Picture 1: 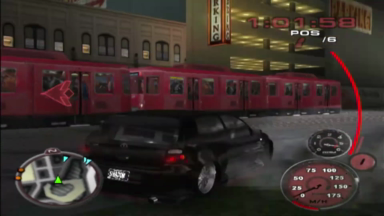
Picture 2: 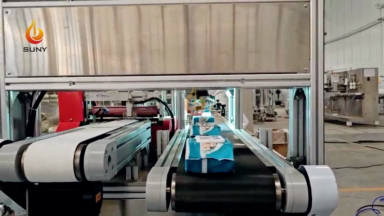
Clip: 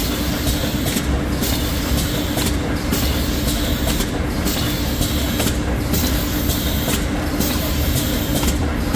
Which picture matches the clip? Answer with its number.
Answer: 2